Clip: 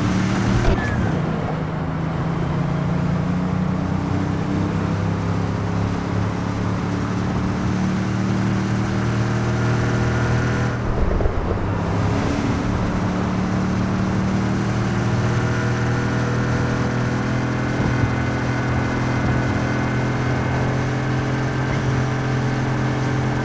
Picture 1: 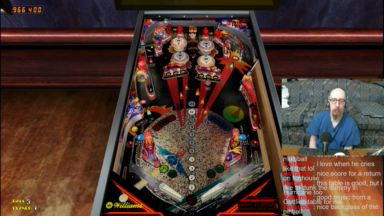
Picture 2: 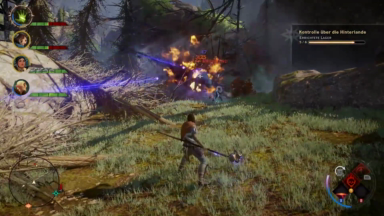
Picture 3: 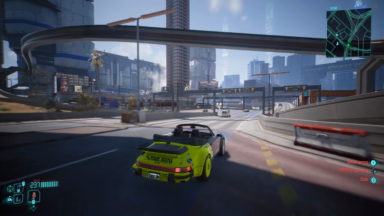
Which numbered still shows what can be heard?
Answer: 3